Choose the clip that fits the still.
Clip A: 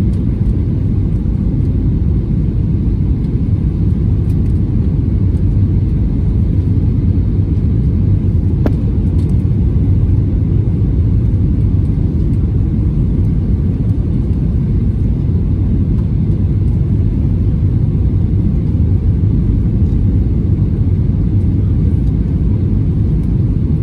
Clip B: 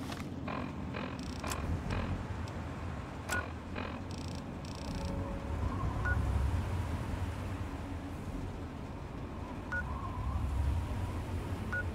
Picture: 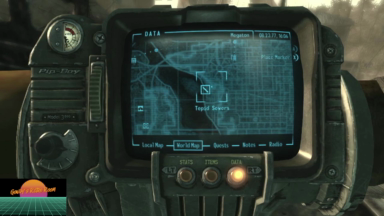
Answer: B